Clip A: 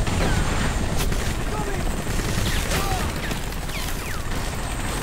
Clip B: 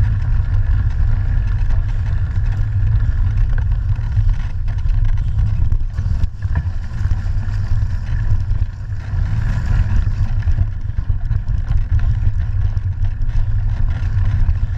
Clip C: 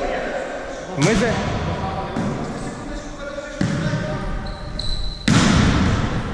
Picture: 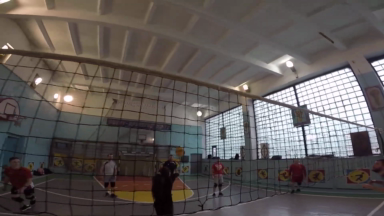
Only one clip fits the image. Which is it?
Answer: C